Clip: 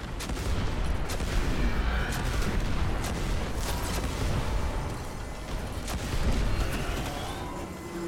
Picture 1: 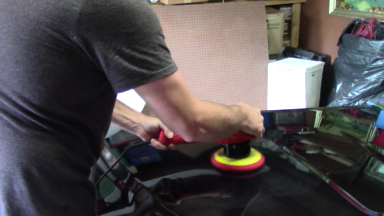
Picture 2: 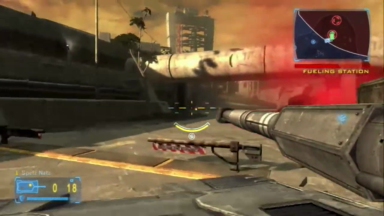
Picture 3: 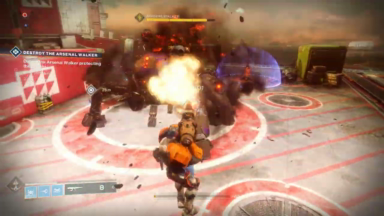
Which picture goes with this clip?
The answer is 3